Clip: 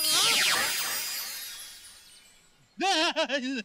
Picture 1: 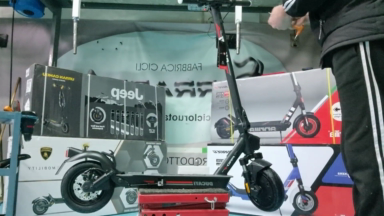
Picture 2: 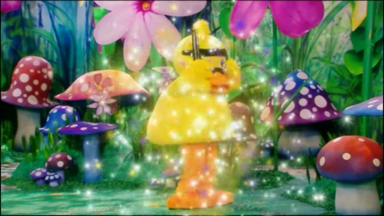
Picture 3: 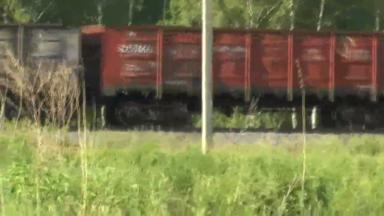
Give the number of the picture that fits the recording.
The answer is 2